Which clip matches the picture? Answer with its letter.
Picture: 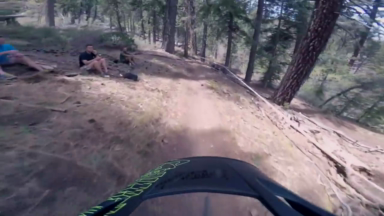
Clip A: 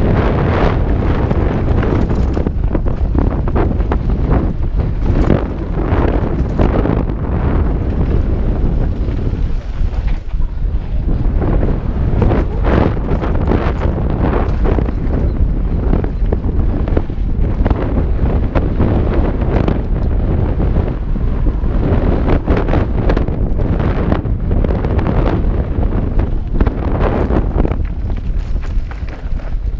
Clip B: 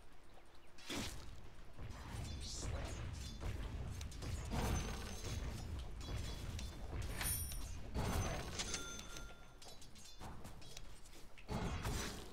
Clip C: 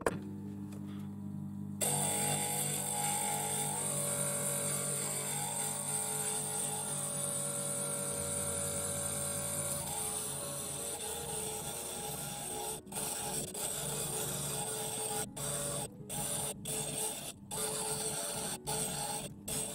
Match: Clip A